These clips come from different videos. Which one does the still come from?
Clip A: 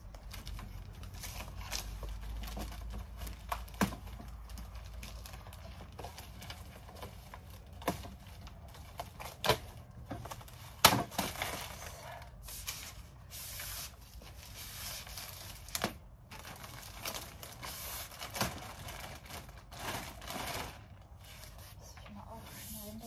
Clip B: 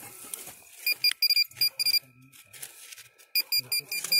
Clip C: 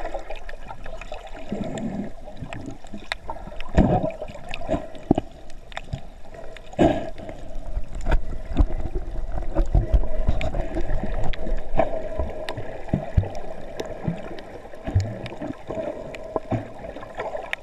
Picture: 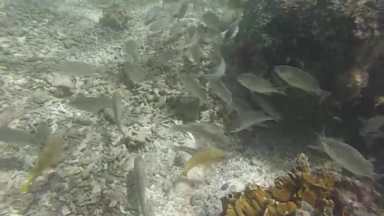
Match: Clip C